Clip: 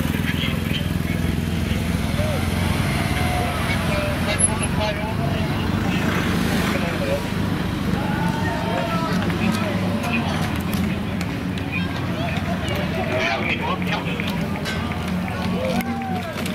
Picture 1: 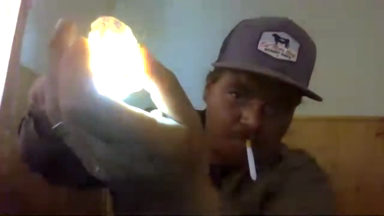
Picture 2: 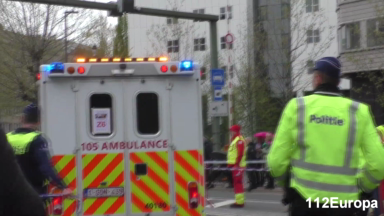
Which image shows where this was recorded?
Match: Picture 2